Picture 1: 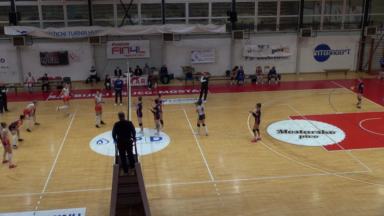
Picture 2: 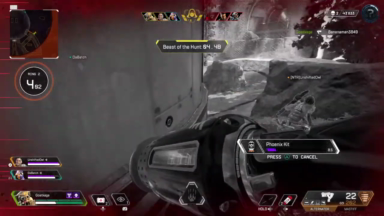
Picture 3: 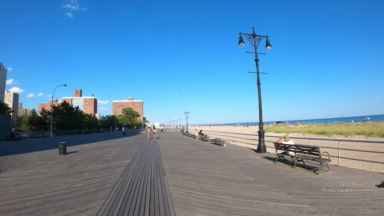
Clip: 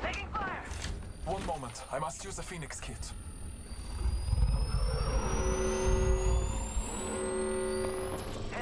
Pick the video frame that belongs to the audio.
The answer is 2